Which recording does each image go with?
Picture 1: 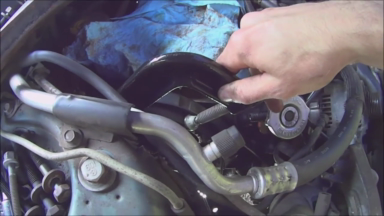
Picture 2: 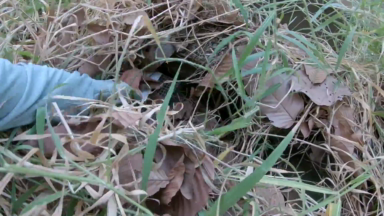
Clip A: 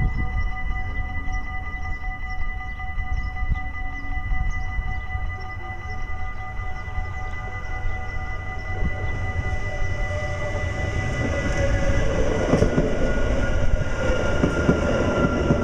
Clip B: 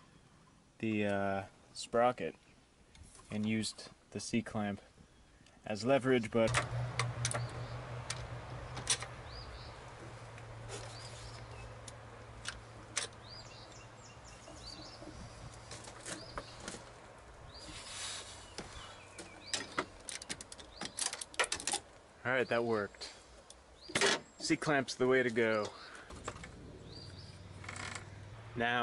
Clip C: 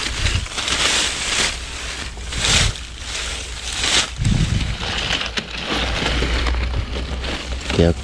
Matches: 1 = B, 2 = C